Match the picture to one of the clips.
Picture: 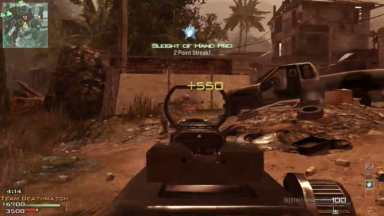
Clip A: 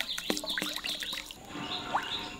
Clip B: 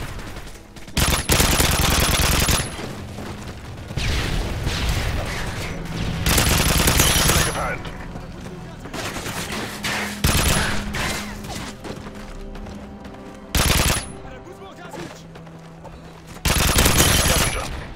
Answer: B